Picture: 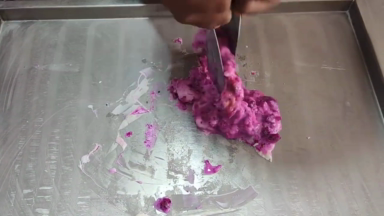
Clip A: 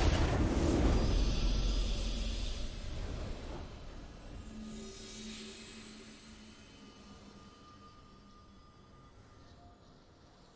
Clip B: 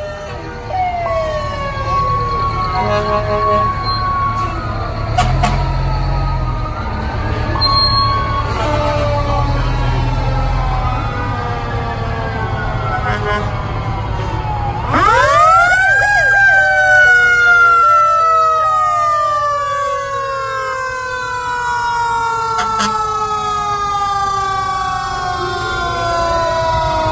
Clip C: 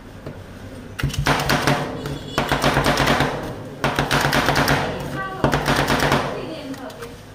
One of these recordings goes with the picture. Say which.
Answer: C